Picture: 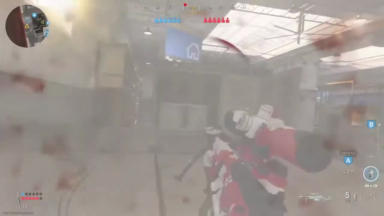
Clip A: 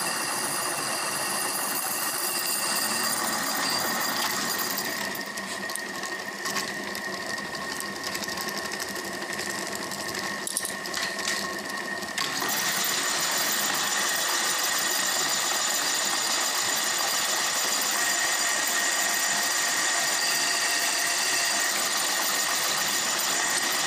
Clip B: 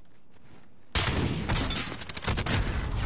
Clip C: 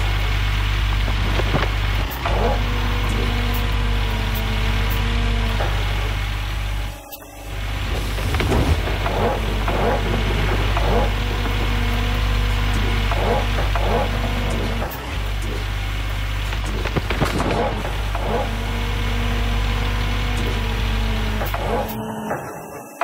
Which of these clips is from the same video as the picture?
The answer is B